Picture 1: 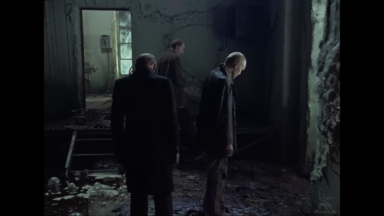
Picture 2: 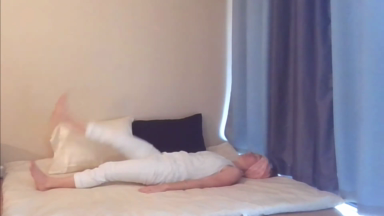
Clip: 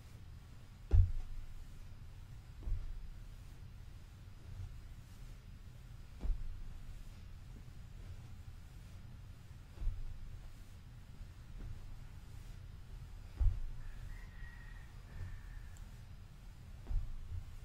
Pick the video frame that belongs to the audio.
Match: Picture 2